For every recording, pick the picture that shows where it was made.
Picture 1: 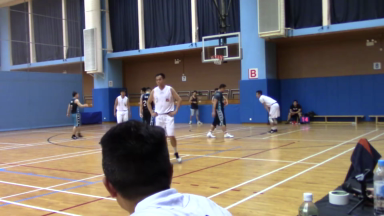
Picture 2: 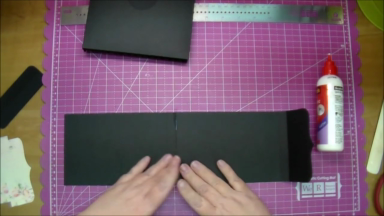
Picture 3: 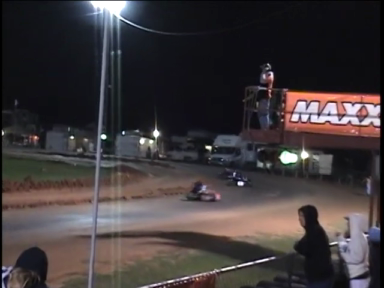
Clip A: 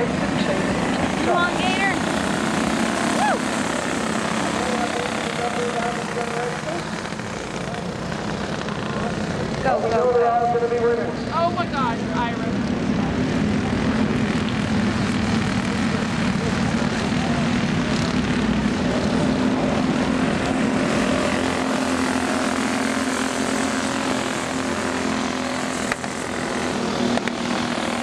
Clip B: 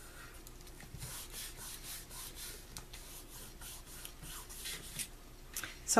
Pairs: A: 3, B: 2